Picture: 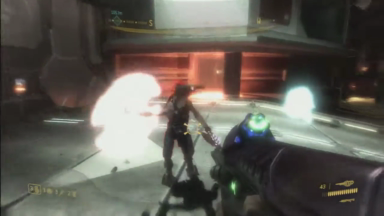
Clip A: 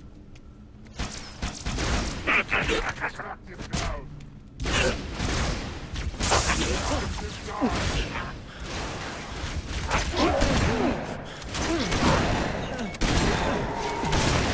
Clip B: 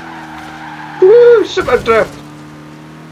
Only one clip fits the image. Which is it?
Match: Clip A